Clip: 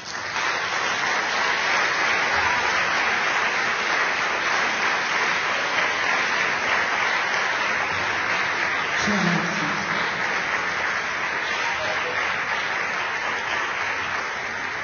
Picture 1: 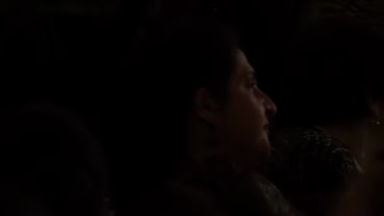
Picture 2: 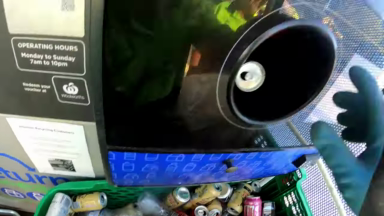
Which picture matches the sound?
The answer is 1